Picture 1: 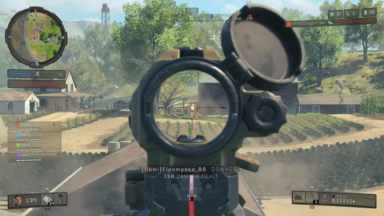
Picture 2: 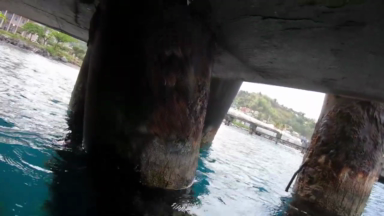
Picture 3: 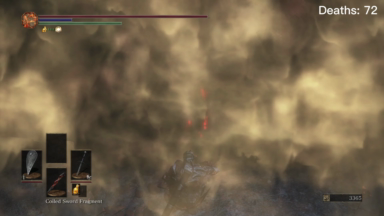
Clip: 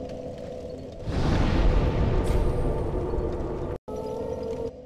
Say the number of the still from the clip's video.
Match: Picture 3